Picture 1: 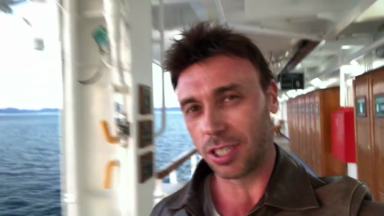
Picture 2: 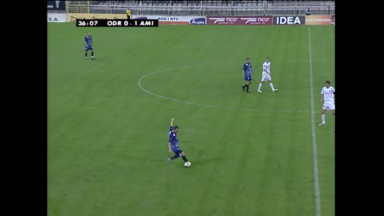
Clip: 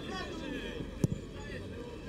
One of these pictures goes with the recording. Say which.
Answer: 2